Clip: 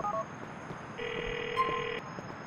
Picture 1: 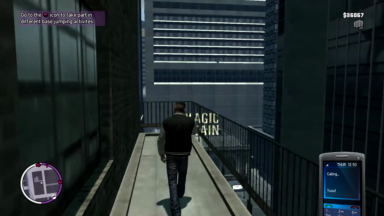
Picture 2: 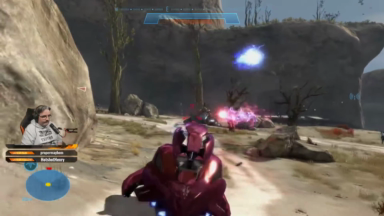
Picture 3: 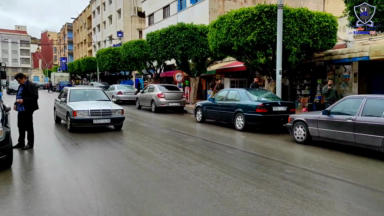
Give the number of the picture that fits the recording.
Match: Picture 1